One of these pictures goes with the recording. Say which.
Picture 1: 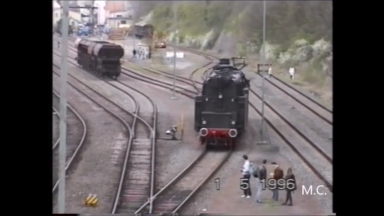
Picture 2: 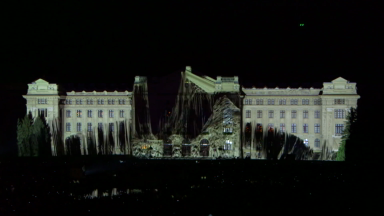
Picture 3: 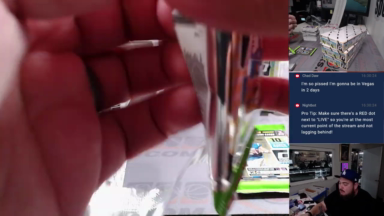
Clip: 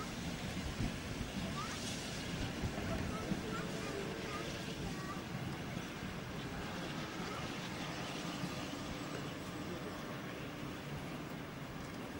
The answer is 1